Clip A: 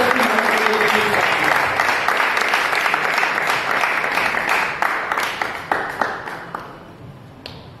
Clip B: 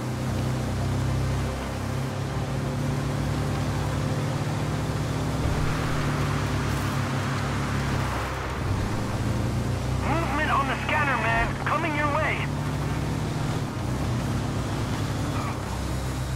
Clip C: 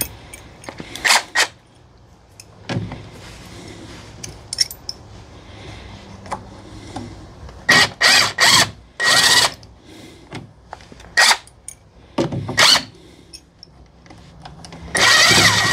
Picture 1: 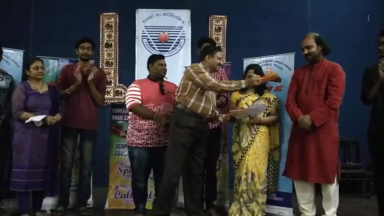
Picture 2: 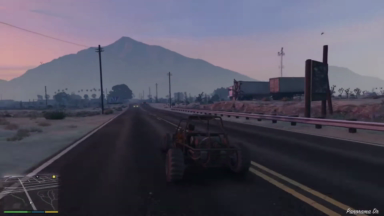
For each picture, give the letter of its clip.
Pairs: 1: A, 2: B